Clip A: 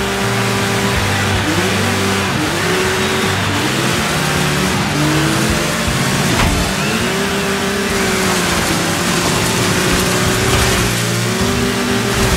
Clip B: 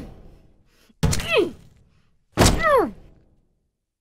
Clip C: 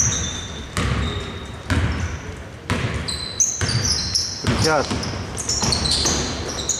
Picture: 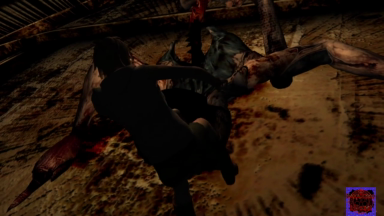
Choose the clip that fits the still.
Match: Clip B